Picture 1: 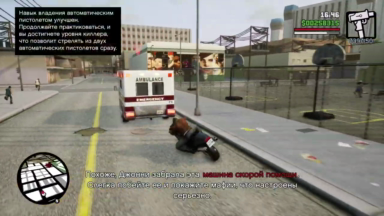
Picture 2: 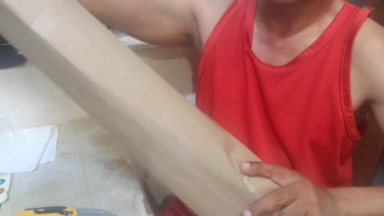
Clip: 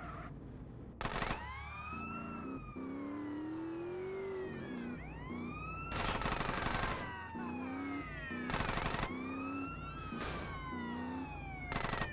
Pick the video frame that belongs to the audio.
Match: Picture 1